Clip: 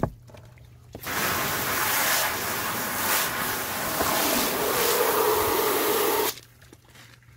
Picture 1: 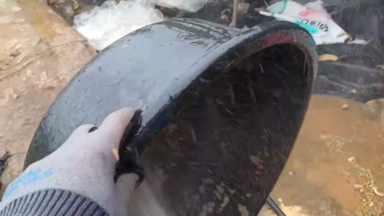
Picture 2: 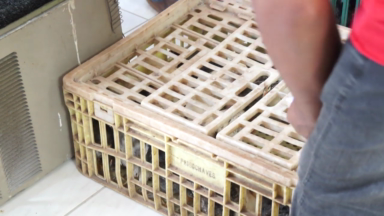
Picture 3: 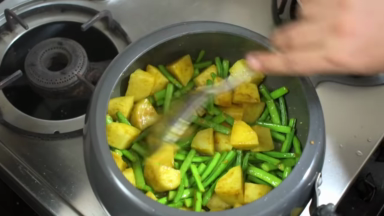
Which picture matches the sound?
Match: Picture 1